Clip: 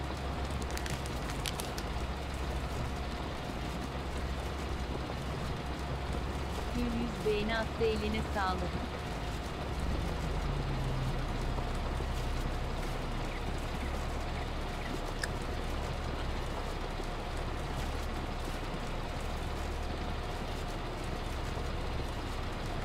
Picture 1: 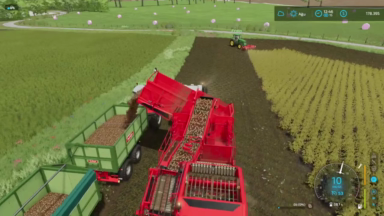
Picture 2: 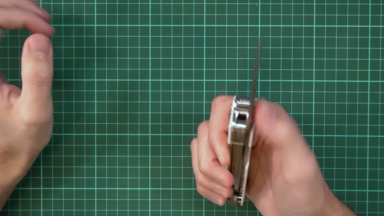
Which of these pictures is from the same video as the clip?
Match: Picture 1